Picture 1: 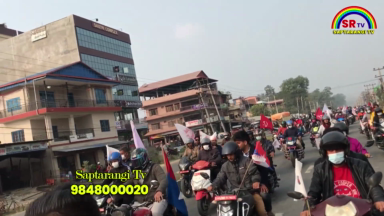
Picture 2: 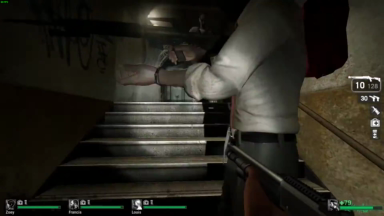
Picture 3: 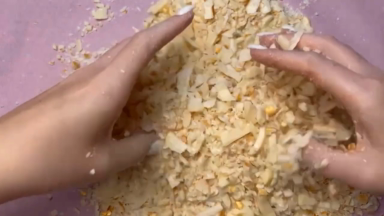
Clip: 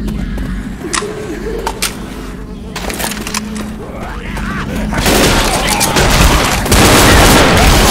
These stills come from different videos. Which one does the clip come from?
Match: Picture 2